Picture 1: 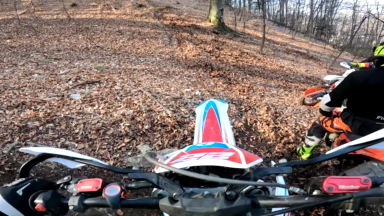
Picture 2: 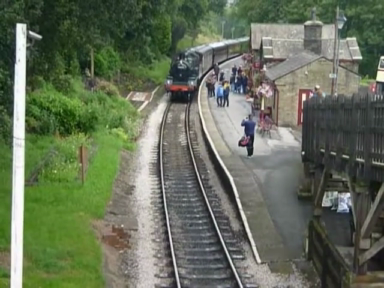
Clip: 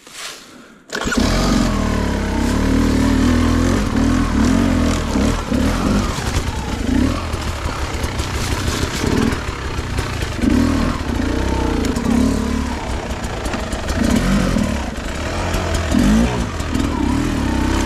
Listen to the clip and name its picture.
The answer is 1